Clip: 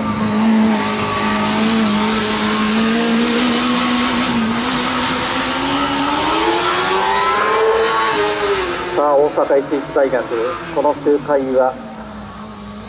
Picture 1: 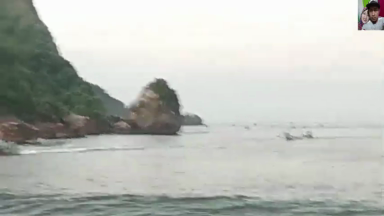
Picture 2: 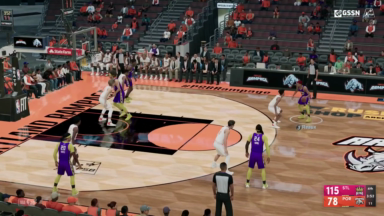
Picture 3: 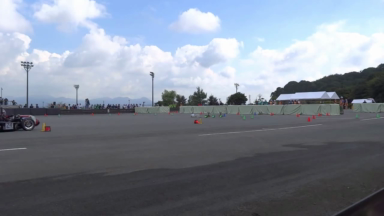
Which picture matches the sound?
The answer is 3